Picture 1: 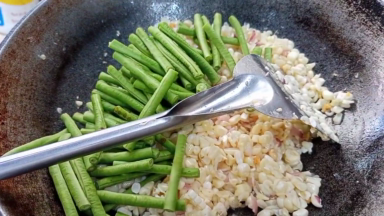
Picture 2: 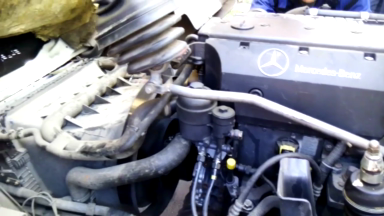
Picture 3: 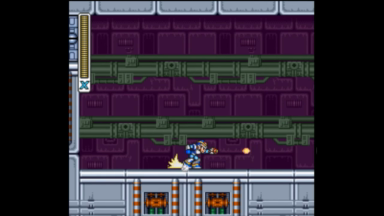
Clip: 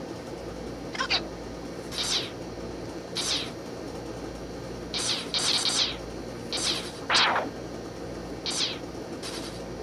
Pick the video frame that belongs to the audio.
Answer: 3